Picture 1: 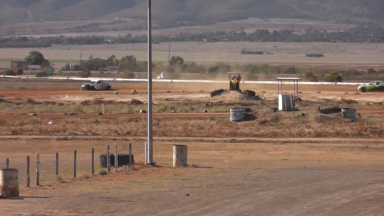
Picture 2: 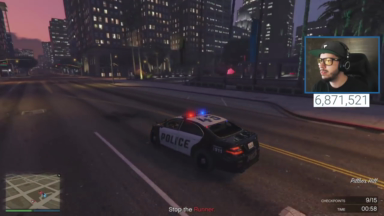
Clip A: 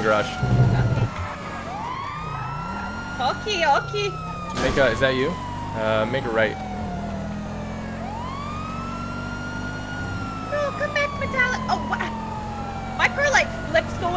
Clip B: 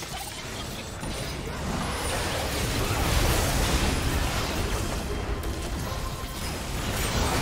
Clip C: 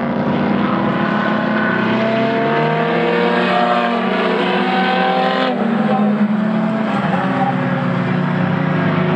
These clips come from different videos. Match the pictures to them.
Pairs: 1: C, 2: A